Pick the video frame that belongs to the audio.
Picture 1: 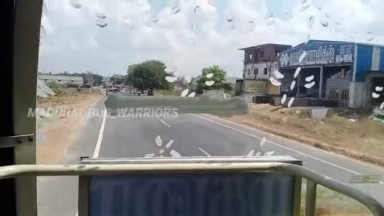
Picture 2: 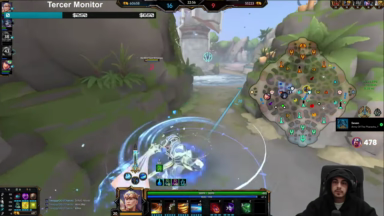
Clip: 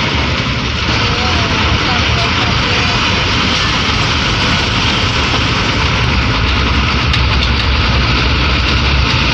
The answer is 1